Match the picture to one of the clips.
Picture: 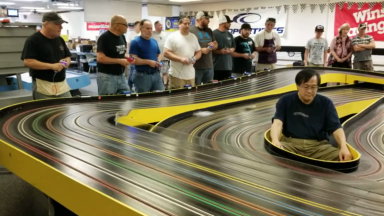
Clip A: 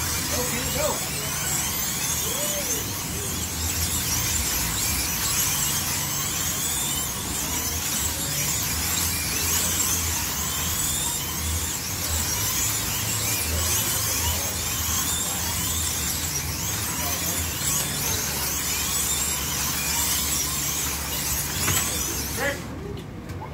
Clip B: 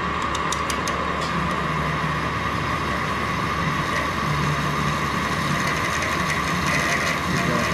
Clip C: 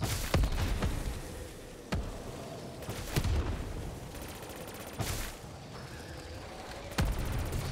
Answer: A